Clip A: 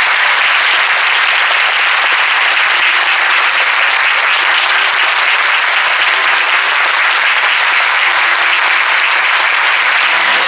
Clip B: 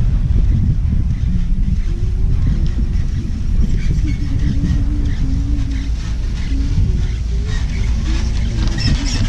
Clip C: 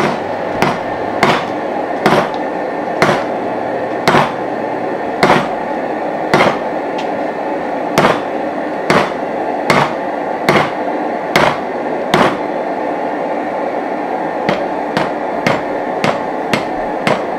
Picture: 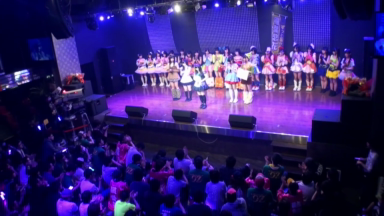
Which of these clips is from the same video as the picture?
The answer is A